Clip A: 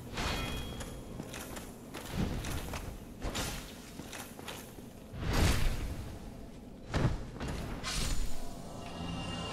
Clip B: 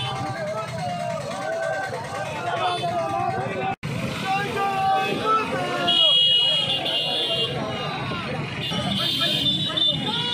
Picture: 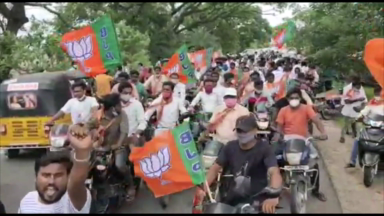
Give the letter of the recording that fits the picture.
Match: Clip B